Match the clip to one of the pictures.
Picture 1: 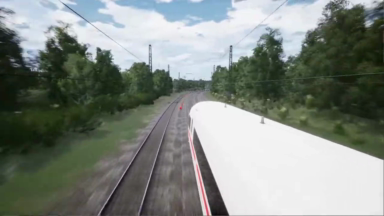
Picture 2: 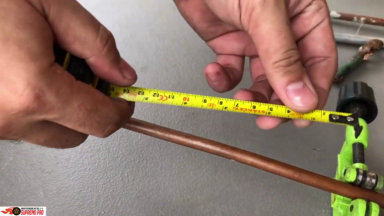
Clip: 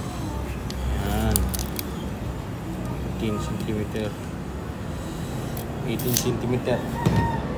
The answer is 2